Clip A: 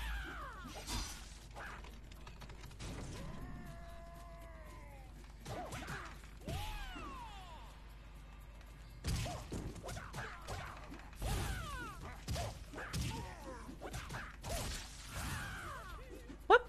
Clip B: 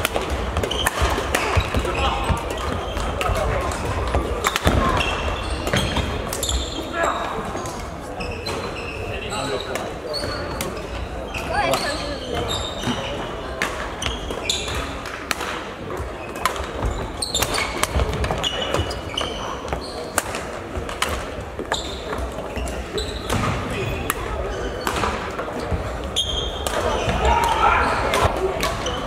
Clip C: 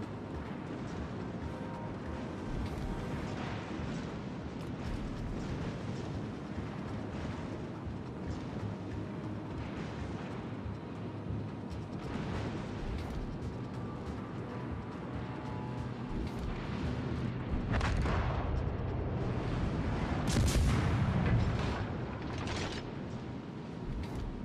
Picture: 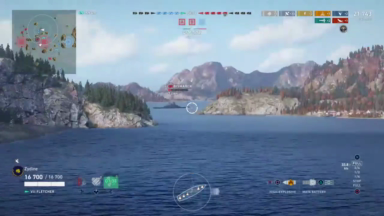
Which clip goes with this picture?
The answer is C